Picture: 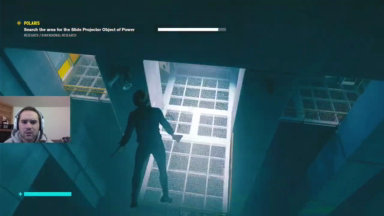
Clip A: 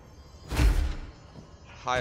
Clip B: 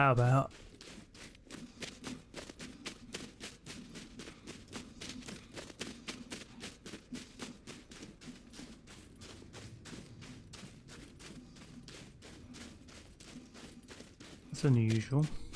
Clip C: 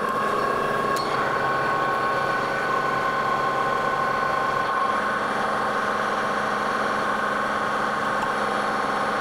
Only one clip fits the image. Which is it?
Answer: A